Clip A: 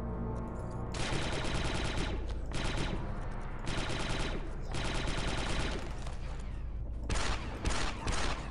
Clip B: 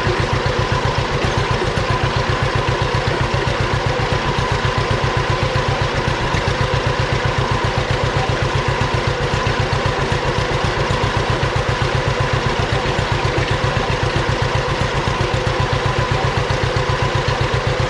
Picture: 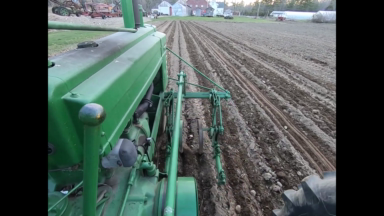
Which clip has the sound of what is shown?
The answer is B